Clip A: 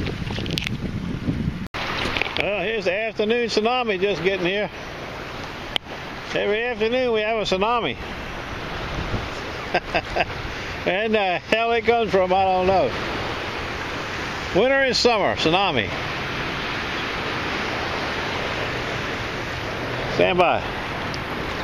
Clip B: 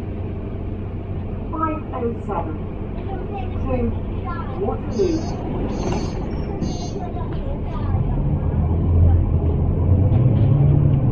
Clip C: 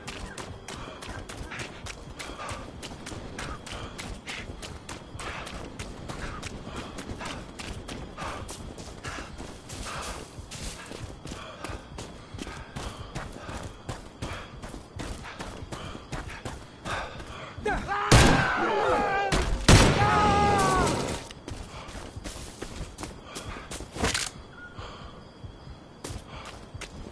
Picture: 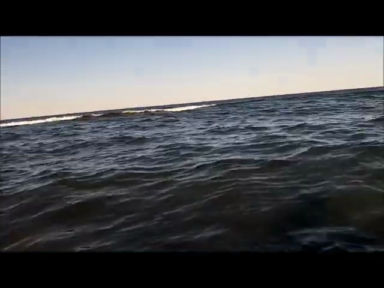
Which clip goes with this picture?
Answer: A